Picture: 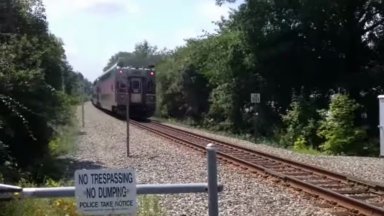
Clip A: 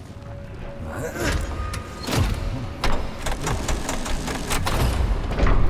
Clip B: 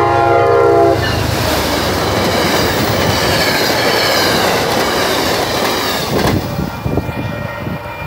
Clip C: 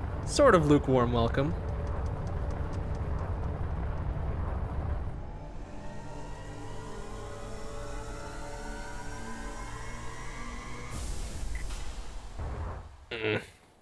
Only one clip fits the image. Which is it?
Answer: B